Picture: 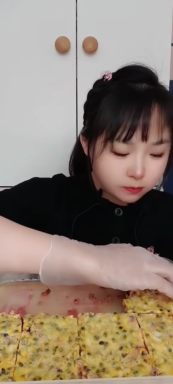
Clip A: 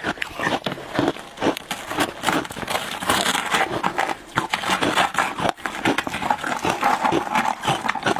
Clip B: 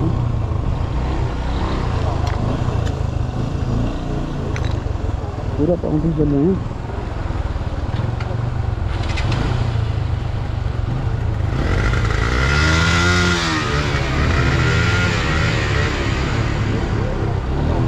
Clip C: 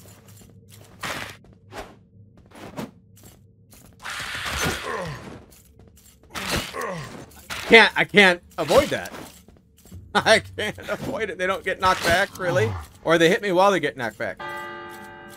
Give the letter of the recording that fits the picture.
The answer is A